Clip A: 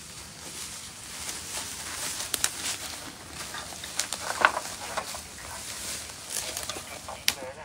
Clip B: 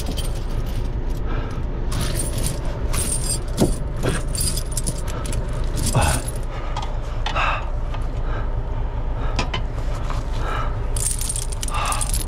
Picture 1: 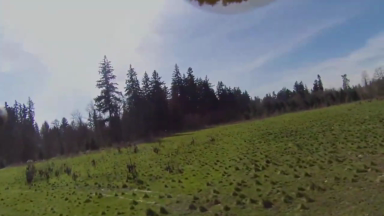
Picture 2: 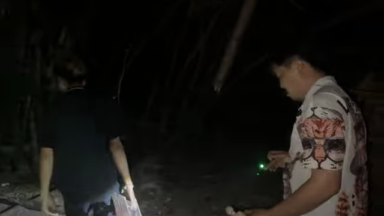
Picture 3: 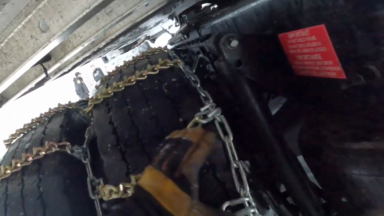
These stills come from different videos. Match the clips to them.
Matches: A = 2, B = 3